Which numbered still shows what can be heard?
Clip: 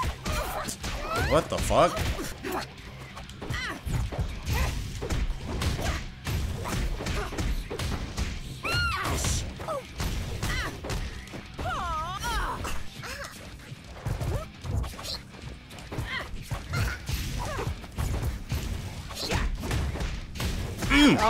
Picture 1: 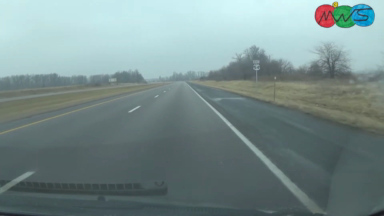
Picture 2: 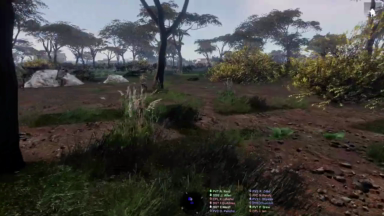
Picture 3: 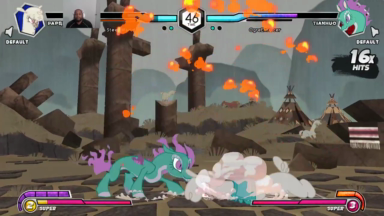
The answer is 3